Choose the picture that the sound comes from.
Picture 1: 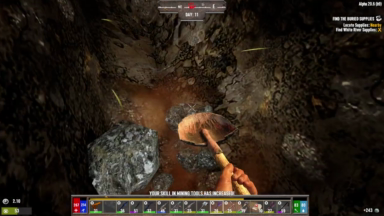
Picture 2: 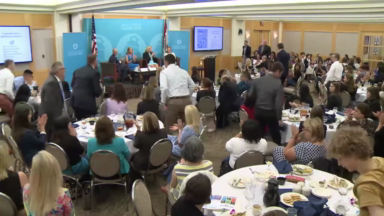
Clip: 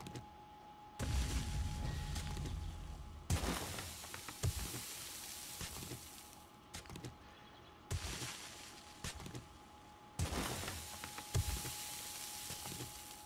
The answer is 1